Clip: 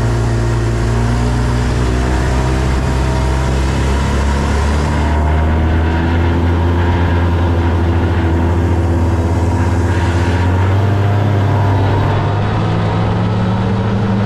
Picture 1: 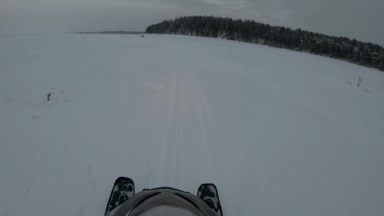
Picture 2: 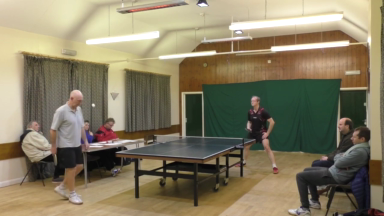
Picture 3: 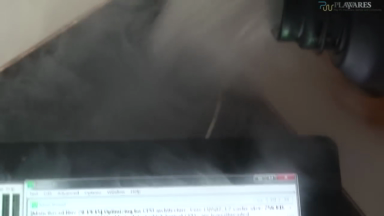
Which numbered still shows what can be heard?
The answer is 1